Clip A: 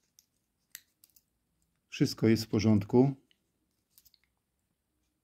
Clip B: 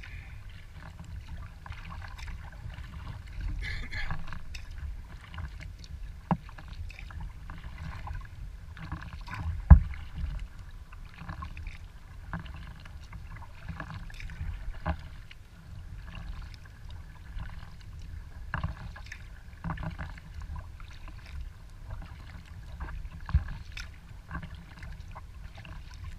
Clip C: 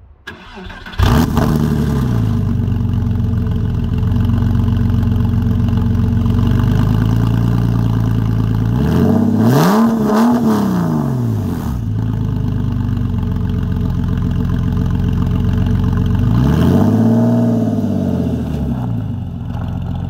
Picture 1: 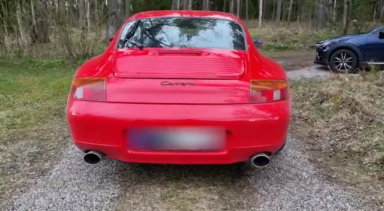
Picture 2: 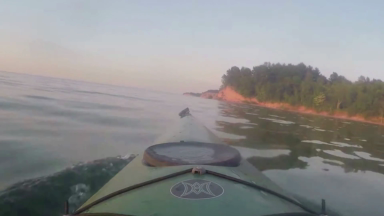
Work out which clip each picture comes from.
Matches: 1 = C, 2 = B